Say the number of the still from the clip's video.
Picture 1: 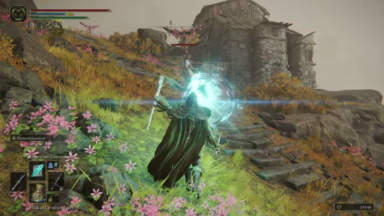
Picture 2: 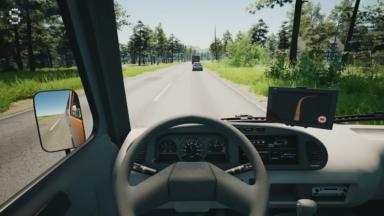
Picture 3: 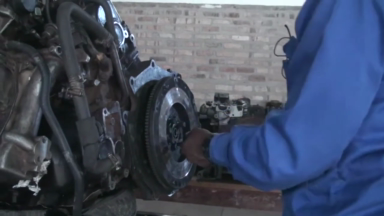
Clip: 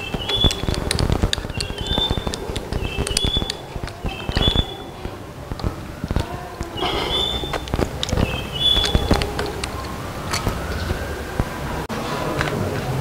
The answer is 3